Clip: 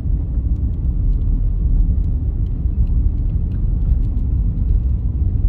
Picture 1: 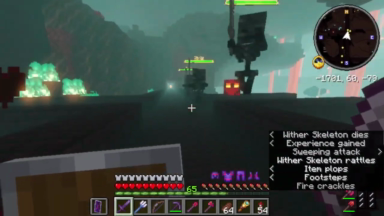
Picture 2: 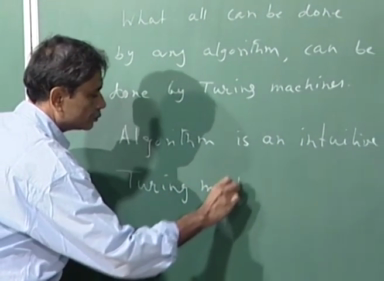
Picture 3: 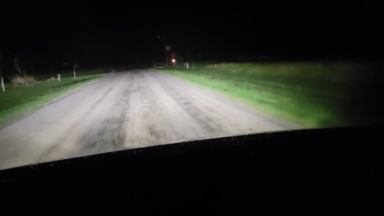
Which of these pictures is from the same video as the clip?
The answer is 3